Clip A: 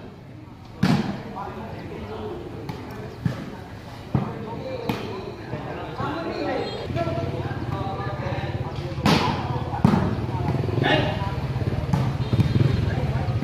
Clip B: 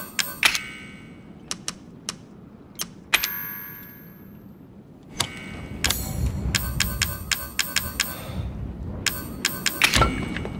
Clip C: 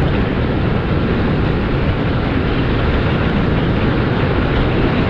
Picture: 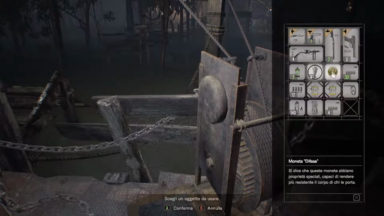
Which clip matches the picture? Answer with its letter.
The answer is B